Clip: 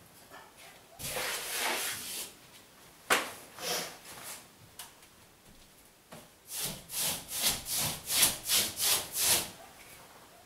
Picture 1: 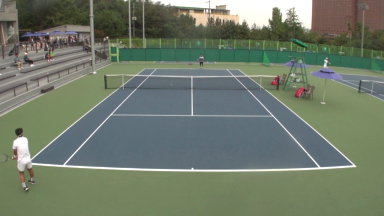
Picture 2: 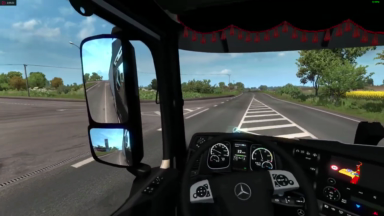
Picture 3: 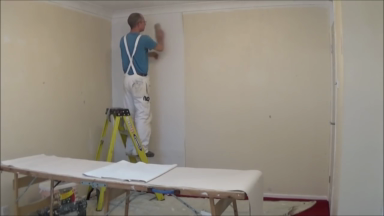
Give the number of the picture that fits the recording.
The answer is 3